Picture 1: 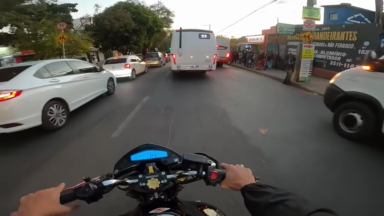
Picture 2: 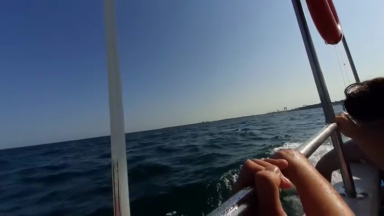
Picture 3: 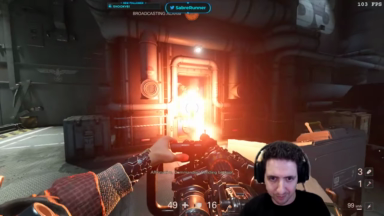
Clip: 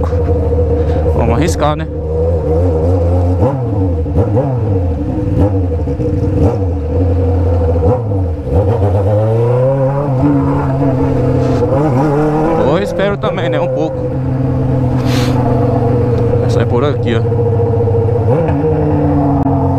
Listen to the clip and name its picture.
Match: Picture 1